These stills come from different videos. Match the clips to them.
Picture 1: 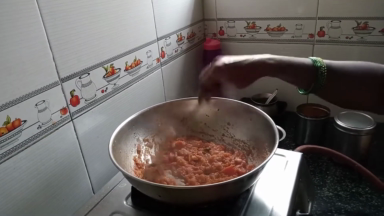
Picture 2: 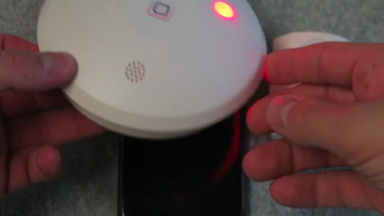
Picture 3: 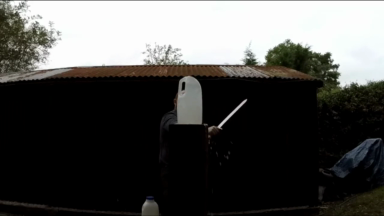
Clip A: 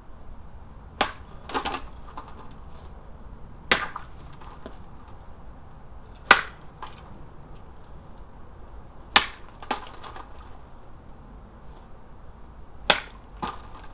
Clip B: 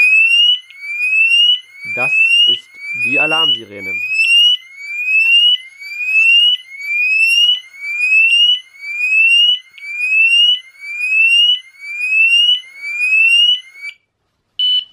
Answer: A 3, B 2